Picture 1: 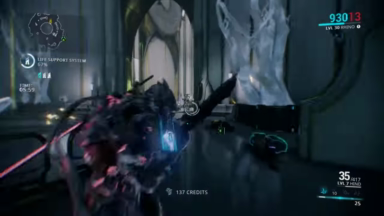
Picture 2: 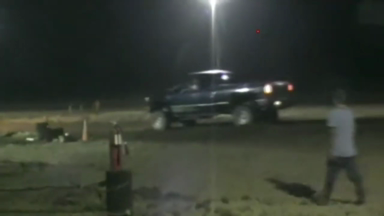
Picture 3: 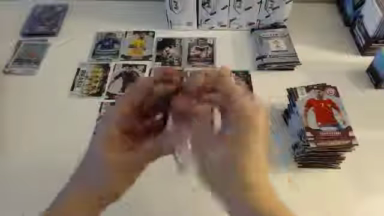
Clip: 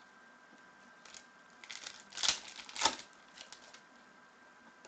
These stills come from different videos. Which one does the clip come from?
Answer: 3